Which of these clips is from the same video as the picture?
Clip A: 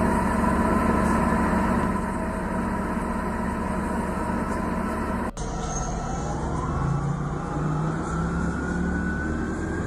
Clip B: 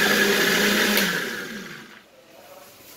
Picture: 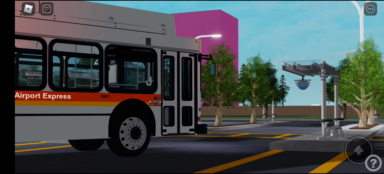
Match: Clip A